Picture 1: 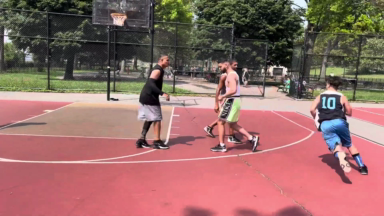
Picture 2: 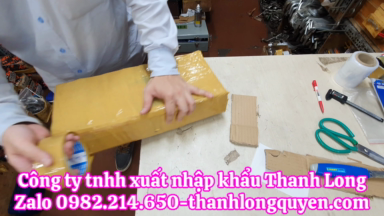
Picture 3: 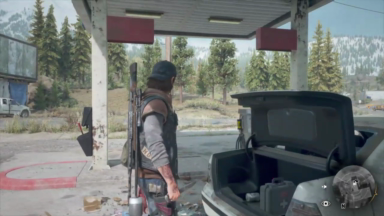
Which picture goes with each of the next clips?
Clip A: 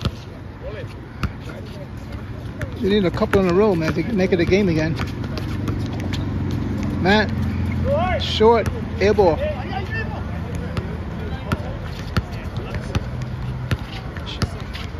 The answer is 1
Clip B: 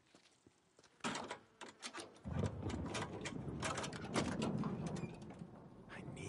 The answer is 3